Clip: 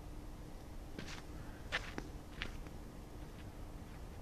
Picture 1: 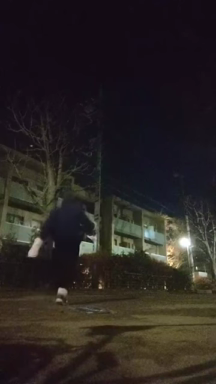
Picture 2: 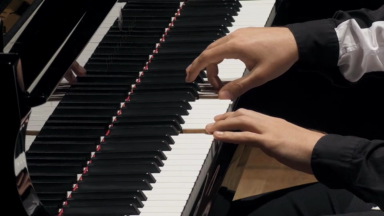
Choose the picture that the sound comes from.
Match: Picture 1